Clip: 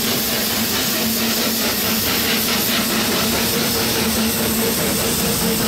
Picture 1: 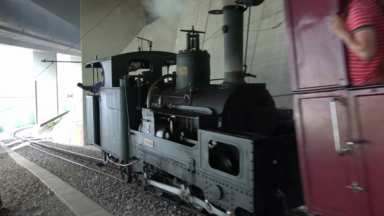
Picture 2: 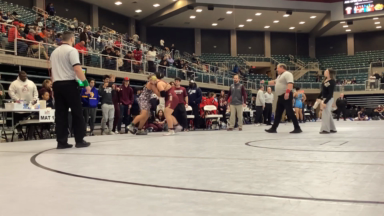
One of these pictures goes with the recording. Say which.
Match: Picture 1